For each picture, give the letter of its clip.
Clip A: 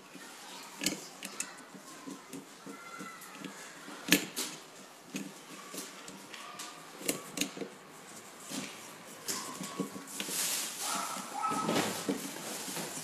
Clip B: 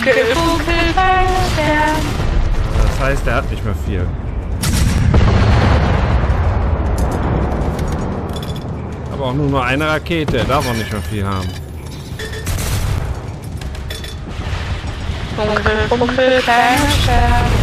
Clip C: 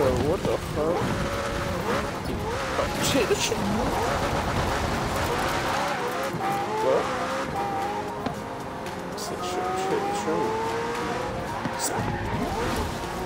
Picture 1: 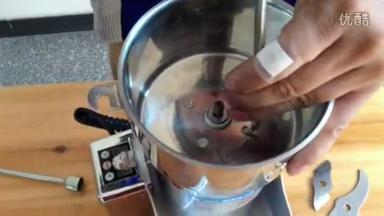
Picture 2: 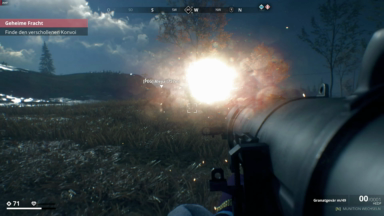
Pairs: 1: A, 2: B